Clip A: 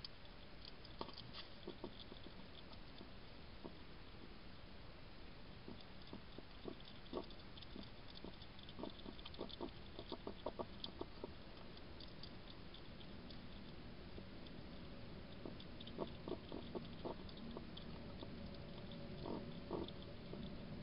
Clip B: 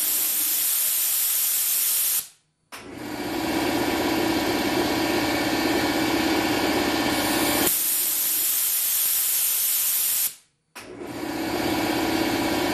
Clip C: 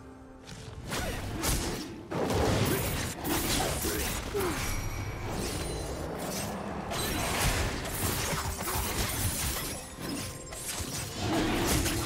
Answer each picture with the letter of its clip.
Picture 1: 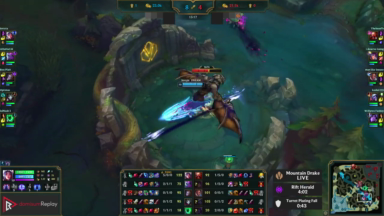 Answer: C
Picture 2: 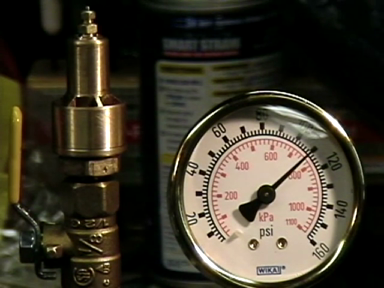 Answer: B